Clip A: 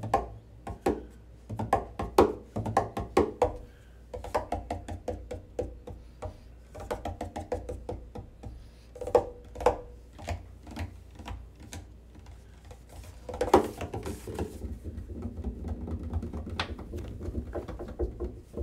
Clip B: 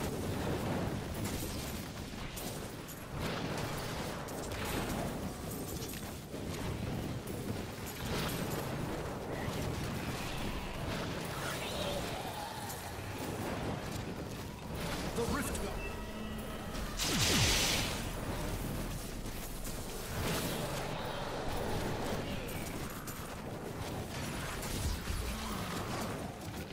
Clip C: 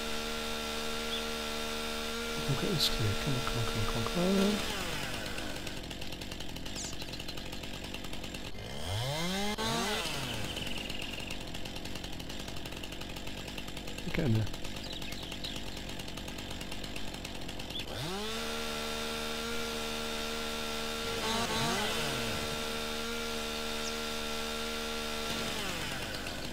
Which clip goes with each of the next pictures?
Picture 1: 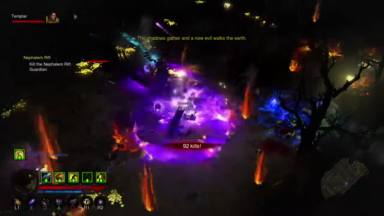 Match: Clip B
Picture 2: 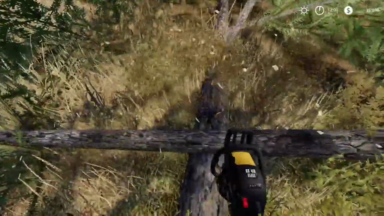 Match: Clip C